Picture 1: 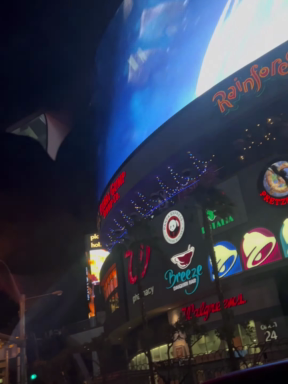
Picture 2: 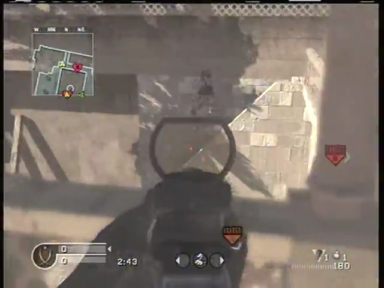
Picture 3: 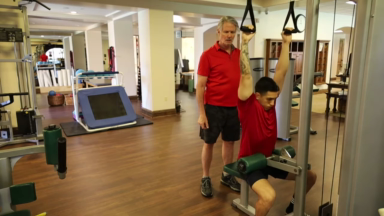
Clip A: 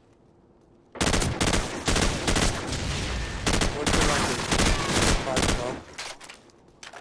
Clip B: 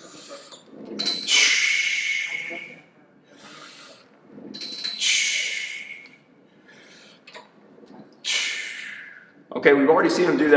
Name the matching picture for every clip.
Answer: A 2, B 3